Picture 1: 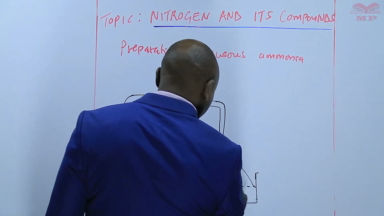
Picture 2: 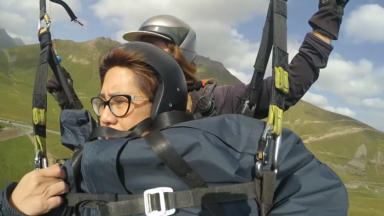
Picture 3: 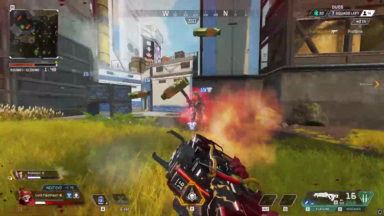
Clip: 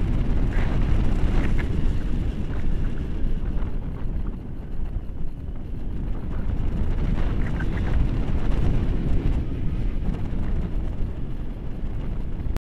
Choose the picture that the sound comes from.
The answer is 2